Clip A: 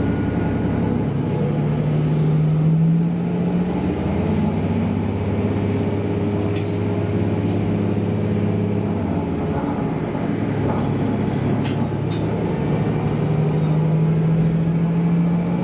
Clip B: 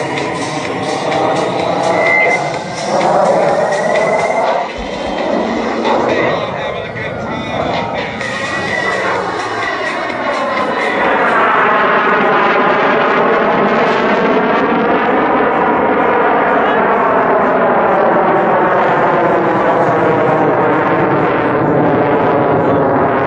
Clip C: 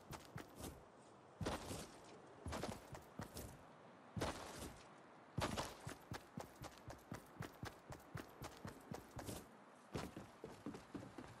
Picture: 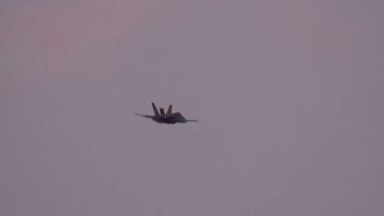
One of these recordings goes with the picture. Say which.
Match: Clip B